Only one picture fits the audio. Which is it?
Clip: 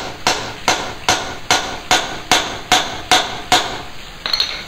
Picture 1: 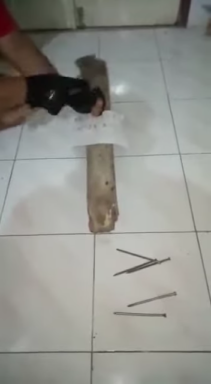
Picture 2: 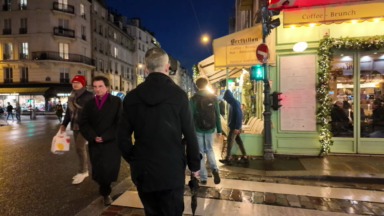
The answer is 1